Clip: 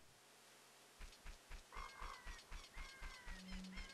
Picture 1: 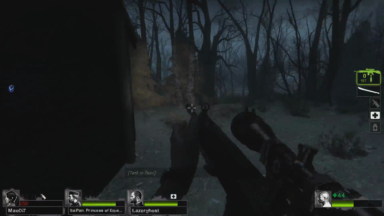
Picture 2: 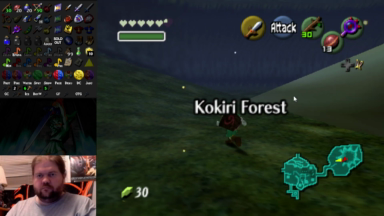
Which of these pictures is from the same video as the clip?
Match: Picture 2